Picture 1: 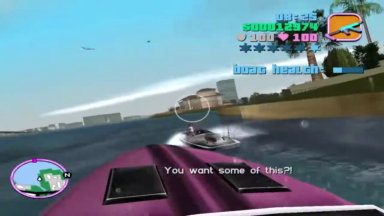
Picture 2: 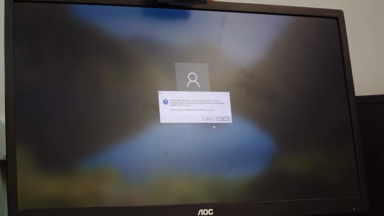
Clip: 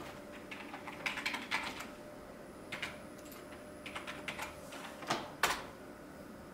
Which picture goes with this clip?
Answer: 2